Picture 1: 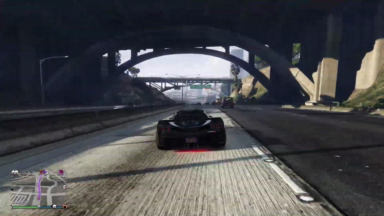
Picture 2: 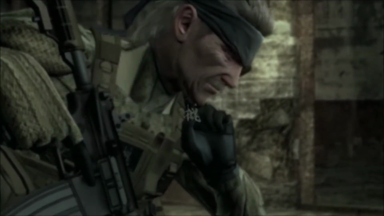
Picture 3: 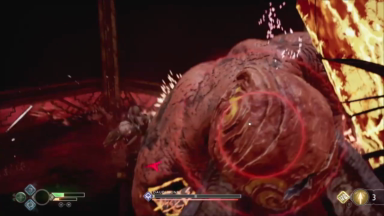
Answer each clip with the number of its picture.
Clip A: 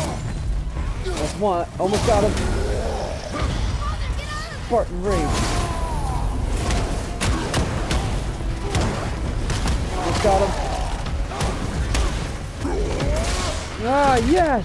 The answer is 3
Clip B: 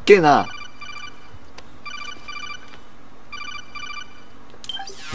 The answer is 2